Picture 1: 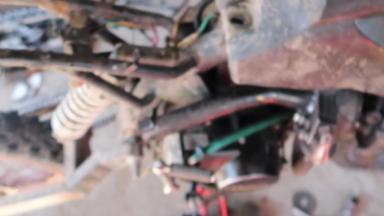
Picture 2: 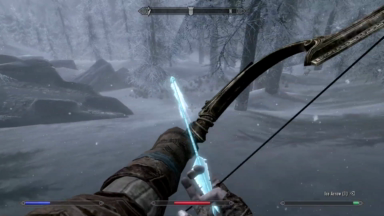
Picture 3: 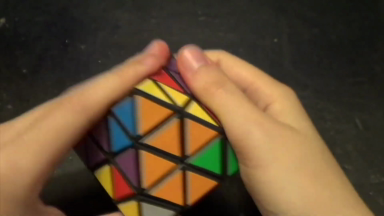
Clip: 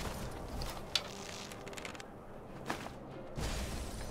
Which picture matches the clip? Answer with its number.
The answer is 2